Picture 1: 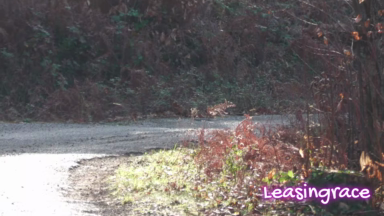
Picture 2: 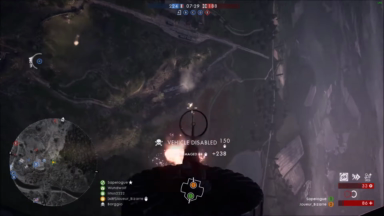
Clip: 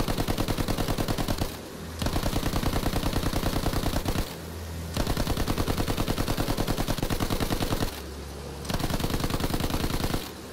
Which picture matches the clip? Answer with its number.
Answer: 2